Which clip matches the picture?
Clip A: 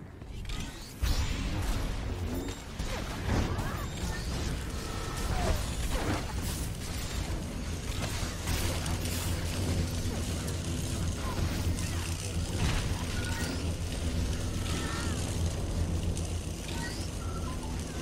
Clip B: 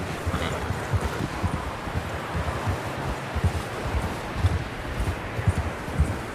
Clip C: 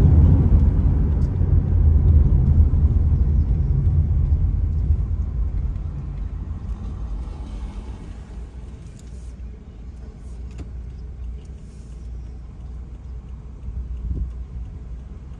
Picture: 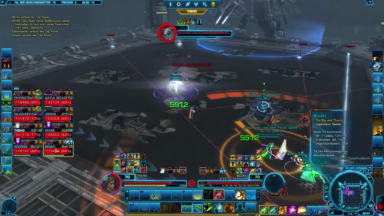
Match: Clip A